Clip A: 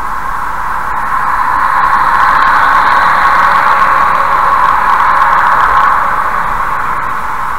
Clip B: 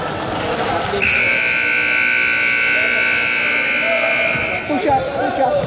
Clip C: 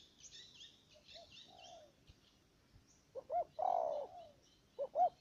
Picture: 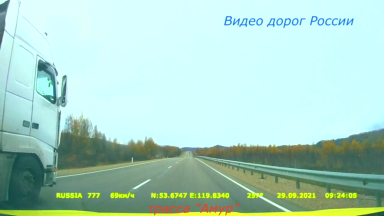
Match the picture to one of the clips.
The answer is A